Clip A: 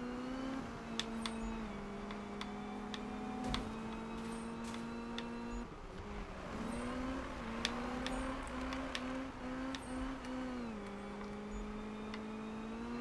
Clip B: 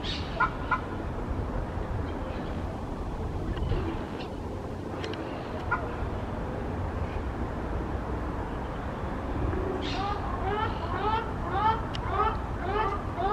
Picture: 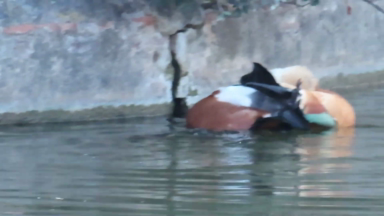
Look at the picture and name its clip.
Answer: B